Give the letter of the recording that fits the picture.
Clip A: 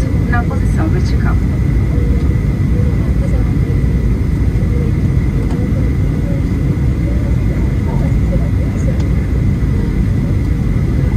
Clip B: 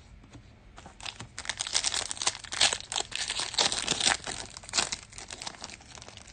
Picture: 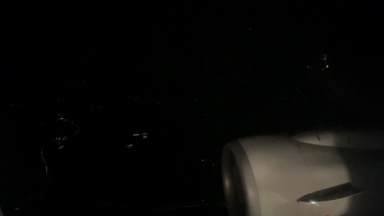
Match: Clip A